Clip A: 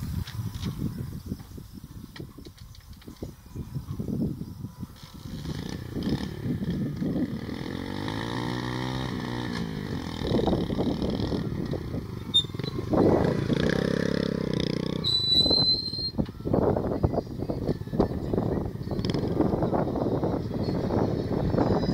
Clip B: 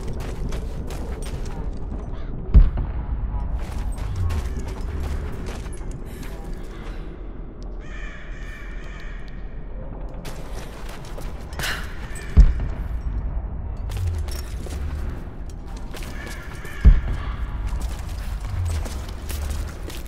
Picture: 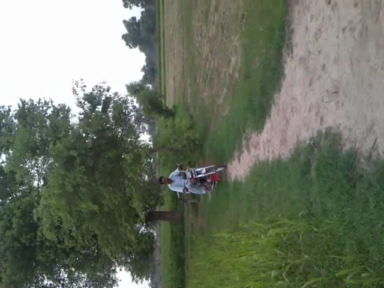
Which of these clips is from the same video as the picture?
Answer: A